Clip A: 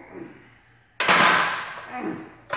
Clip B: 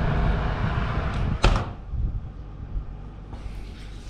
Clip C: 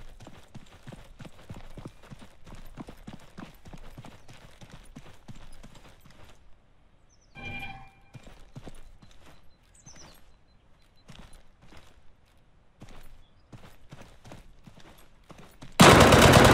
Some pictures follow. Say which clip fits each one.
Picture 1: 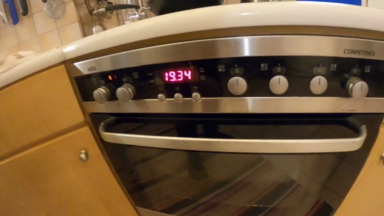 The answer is B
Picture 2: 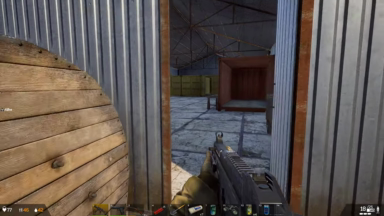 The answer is C